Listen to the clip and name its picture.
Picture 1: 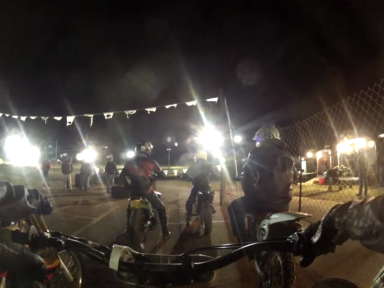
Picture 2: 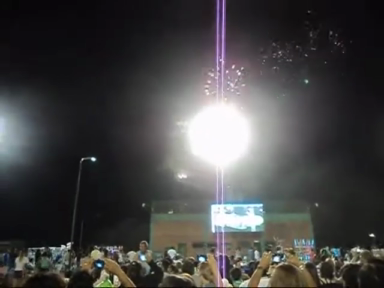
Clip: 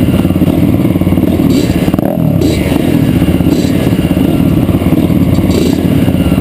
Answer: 1